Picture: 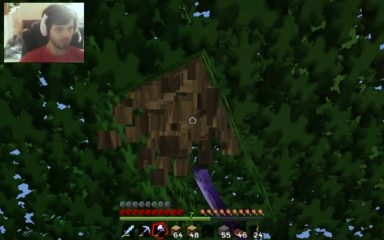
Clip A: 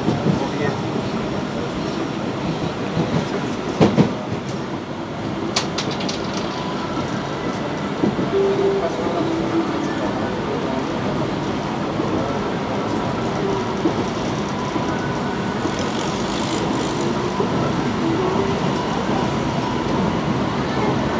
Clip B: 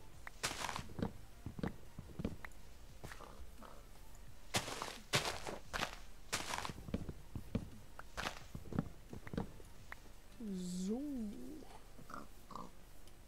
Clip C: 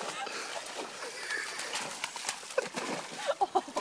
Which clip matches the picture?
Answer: B